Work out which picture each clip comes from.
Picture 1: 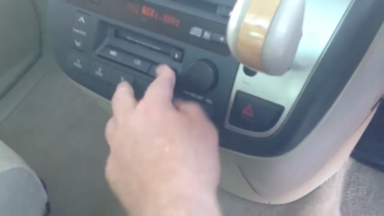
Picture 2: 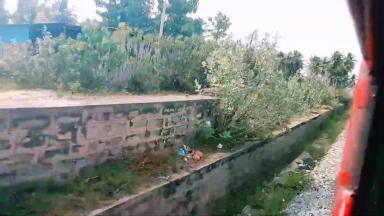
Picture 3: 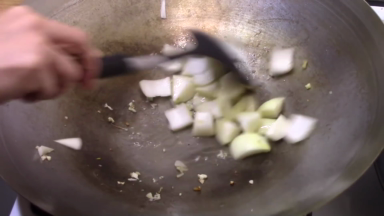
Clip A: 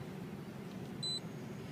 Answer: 1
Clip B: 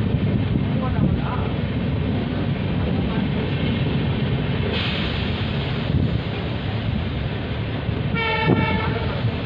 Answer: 2